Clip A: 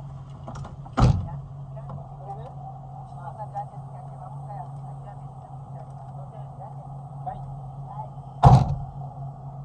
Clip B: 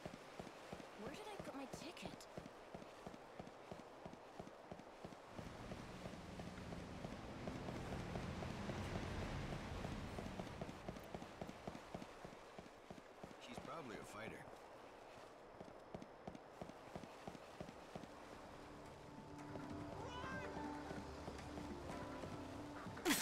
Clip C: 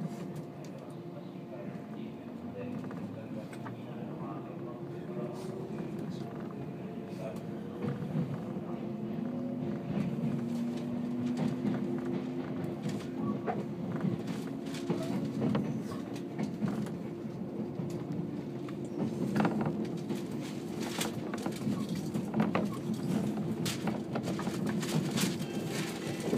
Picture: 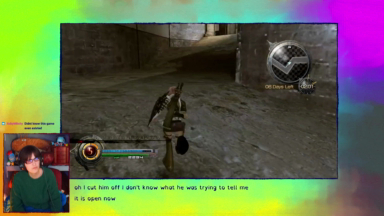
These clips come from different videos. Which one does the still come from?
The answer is B